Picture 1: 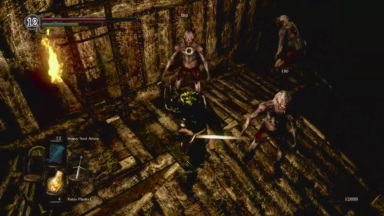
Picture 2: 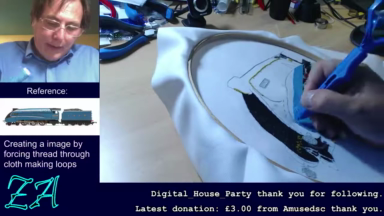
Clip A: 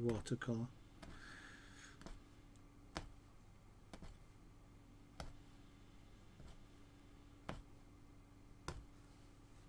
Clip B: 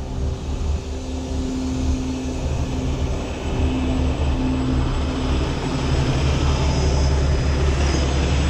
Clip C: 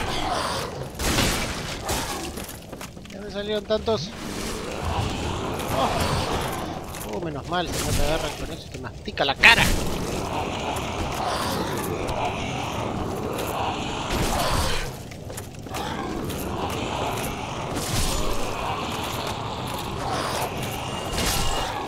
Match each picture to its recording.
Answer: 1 C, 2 A